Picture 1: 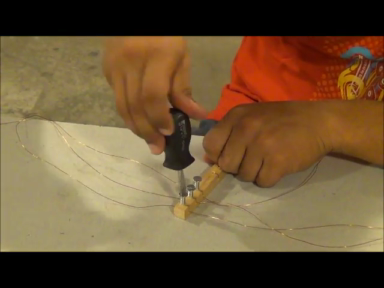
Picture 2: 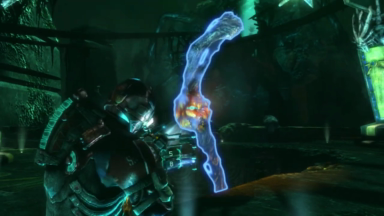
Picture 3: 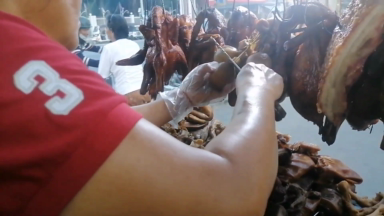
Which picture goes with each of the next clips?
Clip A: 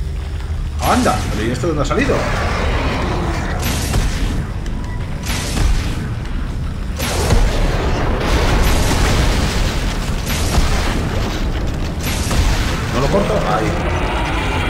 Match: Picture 2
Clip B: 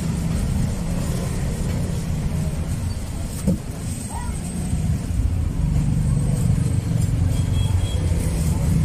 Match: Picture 3